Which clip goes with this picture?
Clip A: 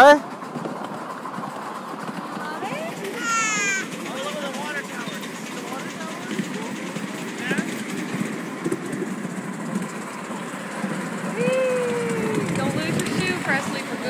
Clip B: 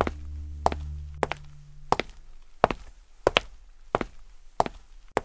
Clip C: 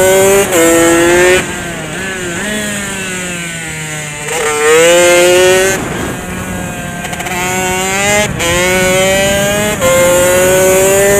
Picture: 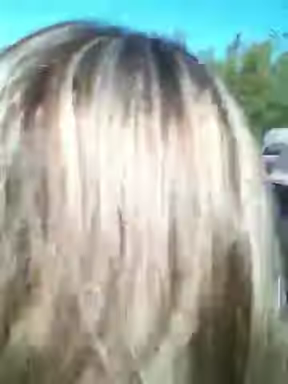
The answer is A